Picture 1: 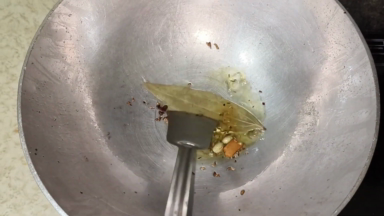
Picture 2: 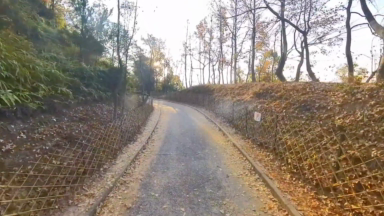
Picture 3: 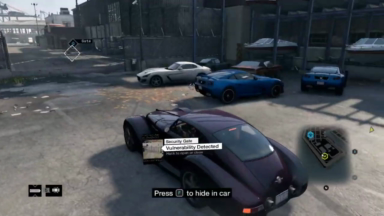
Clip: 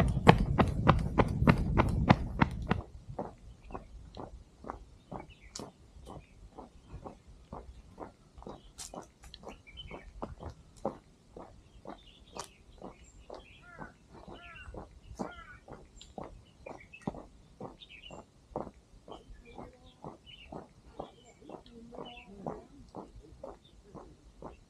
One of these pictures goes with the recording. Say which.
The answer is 2